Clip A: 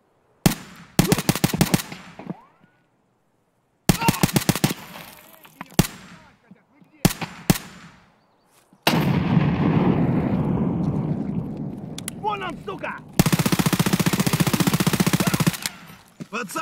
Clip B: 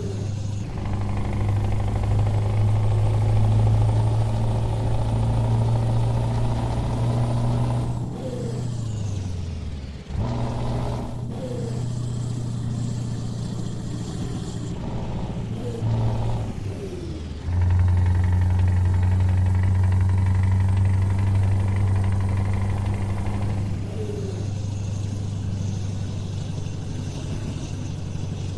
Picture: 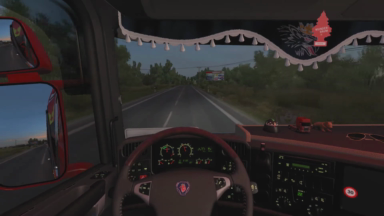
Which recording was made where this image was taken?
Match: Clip B